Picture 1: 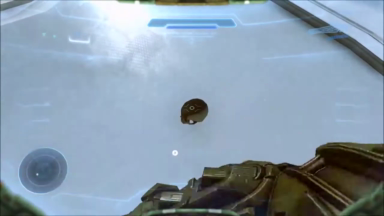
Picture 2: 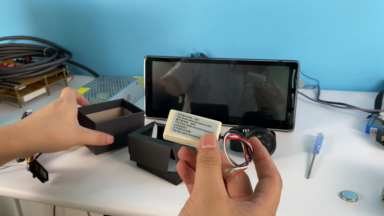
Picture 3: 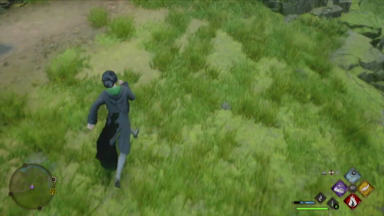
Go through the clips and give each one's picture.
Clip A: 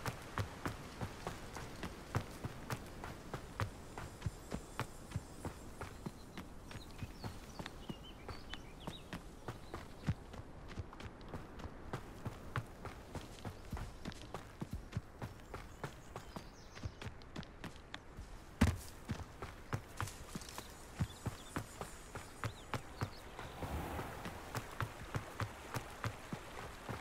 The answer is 3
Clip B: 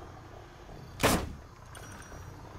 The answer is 1